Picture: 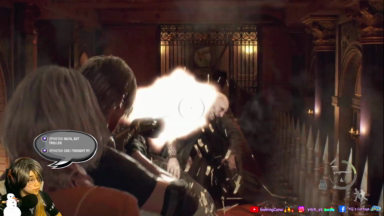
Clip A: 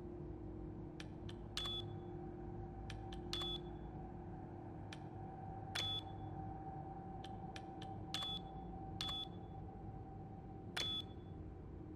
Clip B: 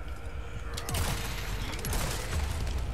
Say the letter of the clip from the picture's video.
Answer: B